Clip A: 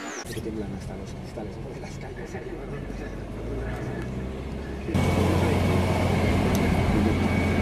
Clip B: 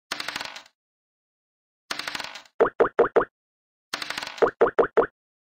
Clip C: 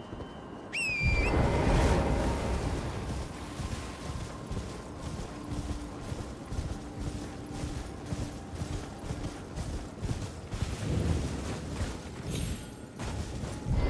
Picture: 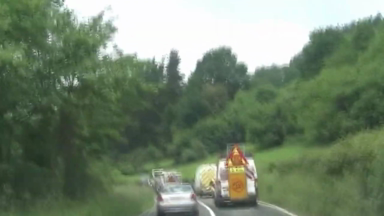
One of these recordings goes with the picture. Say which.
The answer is A